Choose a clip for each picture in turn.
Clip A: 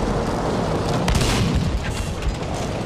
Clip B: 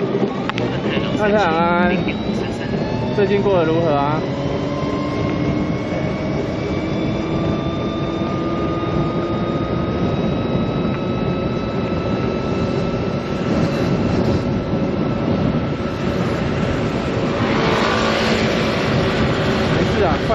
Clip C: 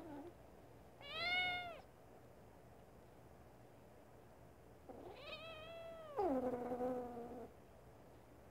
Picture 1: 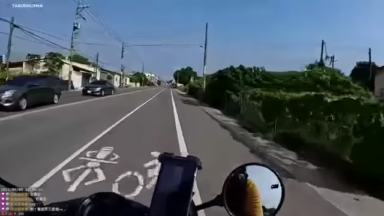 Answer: B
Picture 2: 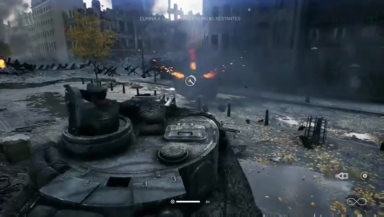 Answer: A